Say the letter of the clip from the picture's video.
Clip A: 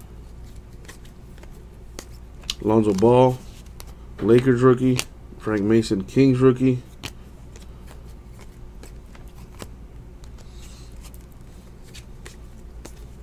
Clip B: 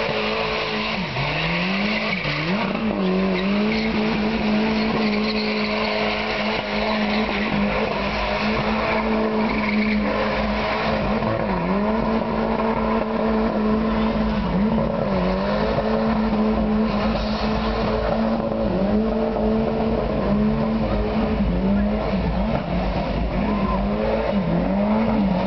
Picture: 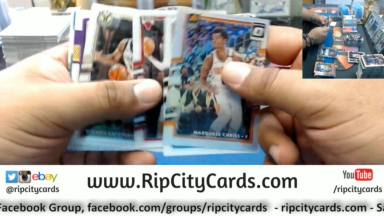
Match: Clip A